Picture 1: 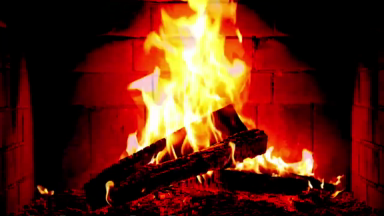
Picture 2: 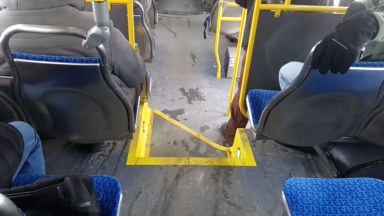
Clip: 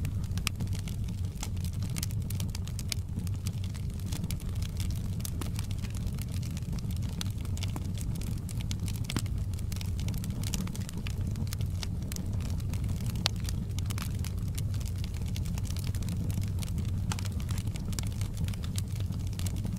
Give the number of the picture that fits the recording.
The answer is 1